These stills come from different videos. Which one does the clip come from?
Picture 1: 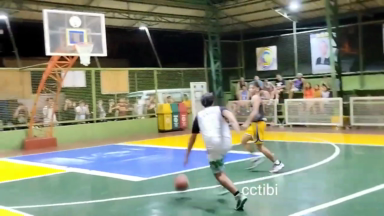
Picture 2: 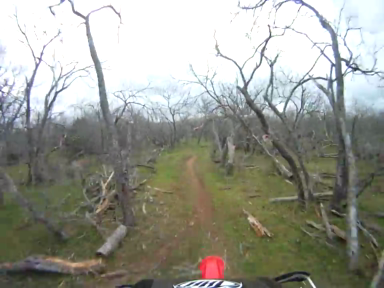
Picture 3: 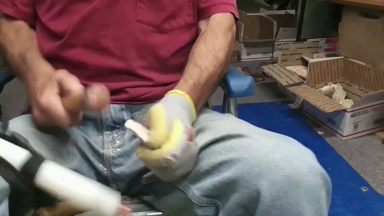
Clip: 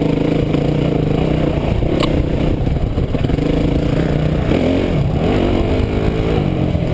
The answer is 2